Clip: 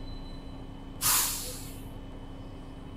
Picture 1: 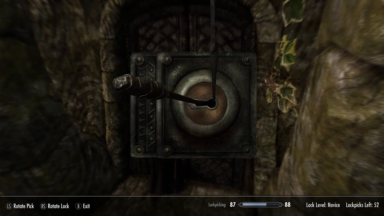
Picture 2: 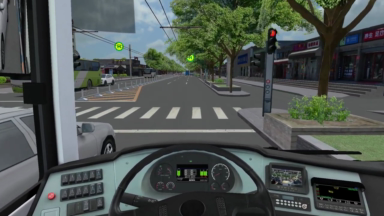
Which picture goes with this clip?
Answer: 2